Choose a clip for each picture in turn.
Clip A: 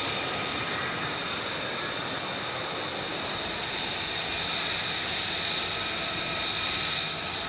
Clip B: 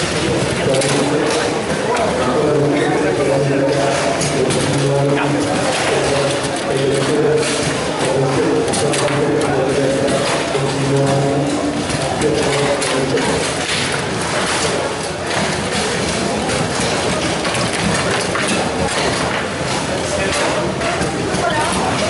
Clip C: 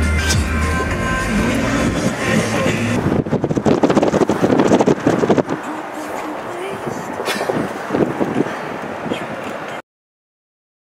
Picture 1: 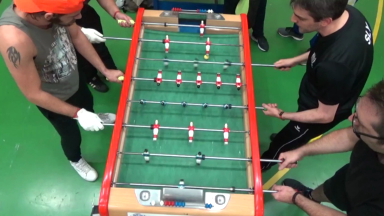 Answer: B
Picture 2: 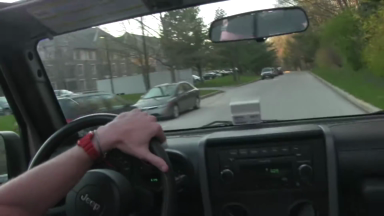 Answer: C